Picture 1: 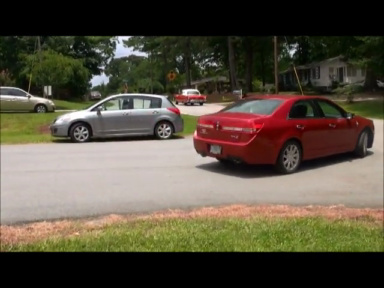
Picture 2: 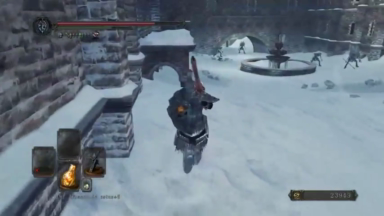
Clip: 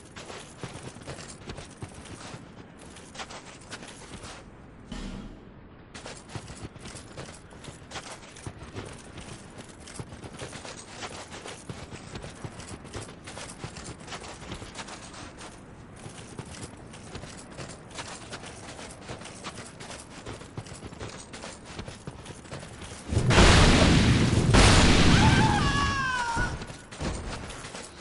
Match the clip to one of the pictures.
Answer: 2